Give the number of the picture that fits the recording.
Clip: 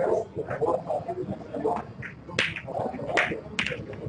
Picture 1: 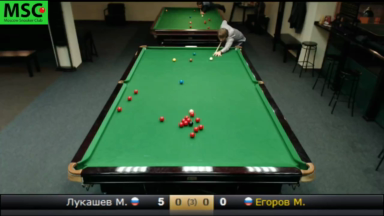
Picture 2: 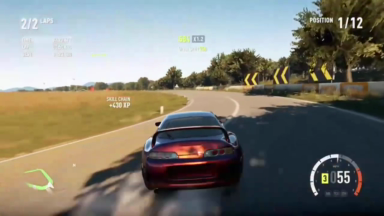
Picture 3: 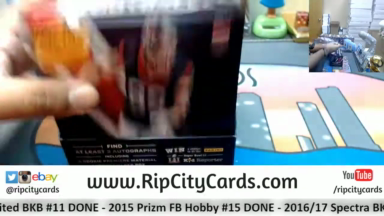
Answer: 1